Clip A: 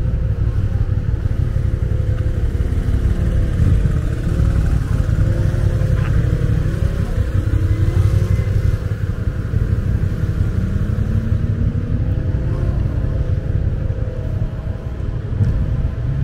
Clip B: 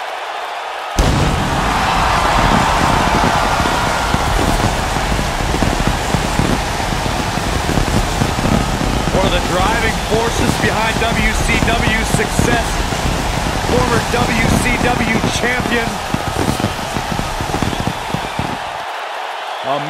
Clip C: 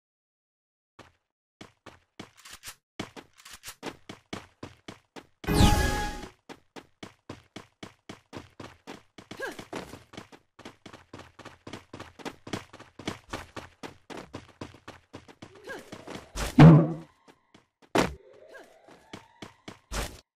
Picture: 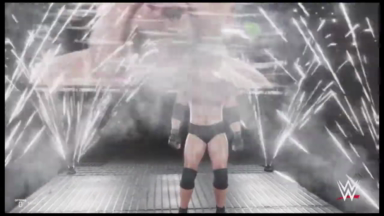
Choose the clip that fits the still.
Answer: B